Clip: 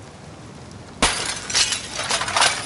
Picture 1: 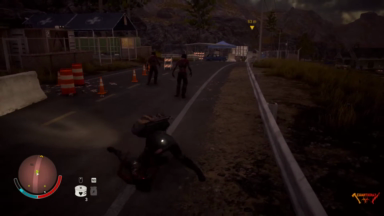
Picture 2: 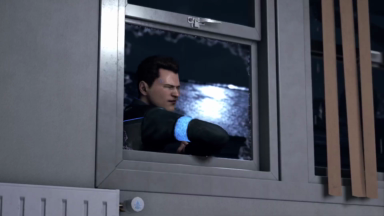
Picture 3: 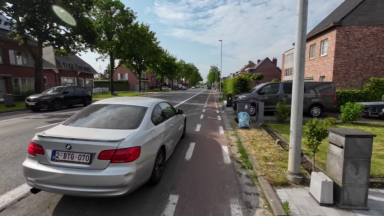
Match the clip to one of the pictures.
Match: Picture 2